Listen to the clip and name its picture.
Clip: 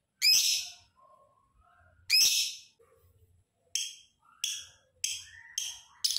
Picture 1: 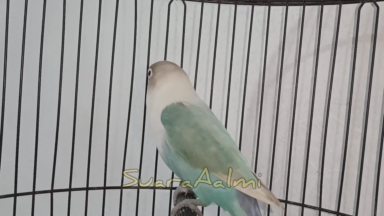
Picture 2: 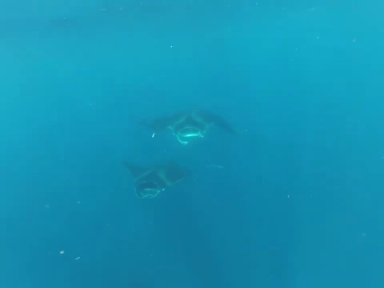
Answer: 1